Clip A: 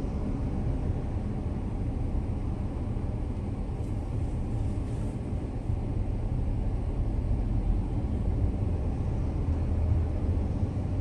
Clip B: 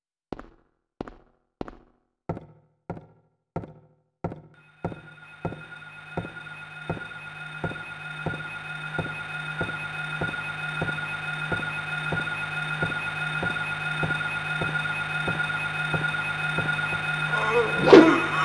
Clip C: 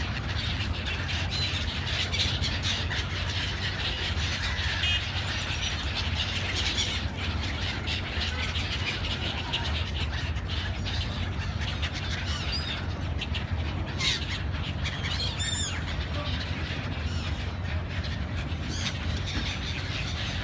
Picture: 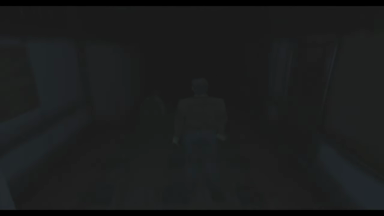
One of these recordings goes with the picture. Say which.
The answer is B